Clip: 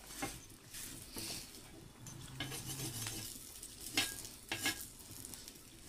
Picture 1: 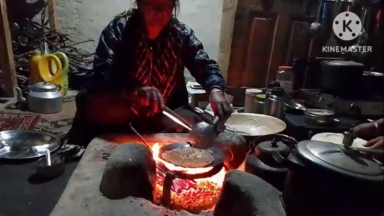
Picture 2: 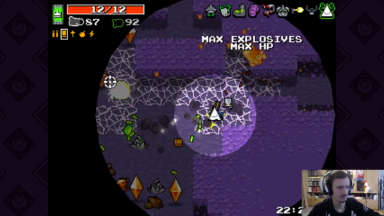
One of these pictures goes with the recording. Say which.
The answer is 1